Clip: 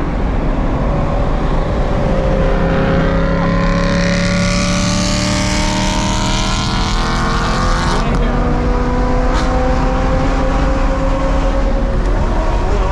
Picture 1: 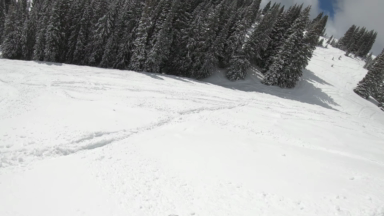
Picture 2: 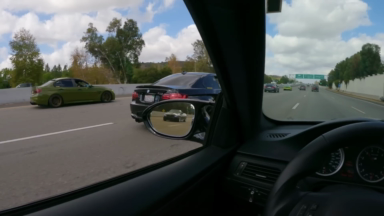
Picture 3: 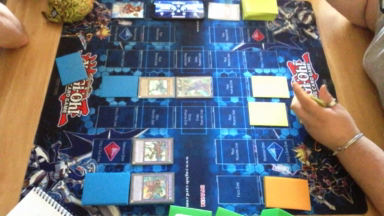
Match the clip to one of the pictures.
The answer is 2